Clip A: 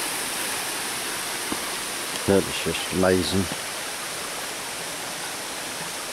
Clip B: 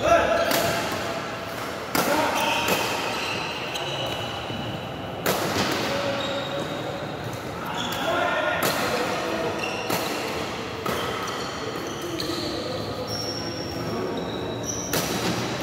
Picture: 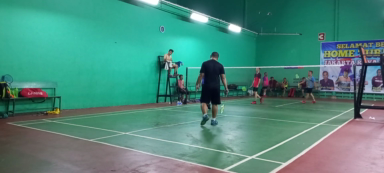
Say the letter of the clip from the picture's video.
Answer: B